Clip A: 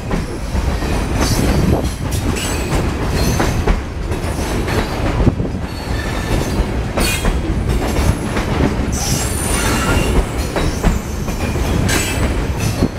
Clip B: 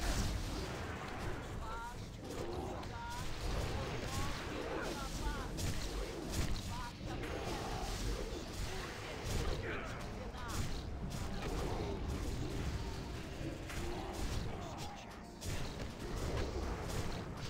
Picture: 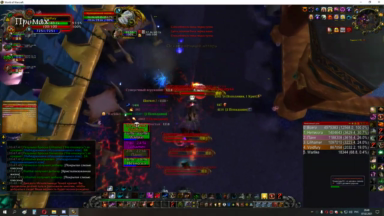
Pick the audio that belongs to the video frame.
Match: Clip B